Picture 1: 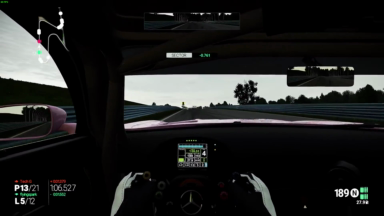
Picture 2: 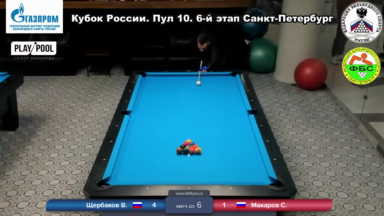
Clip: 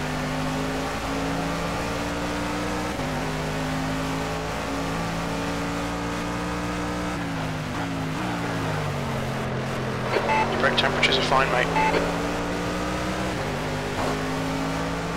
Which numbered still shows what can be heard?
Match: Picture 1